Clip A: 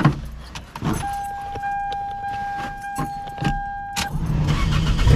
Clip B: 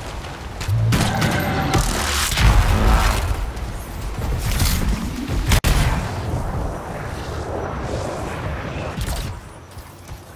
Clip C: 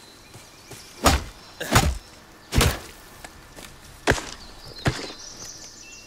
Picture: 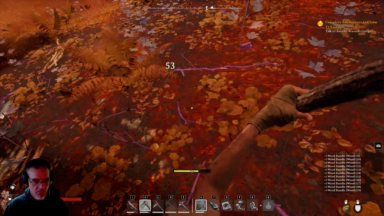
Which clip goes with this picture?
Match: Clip C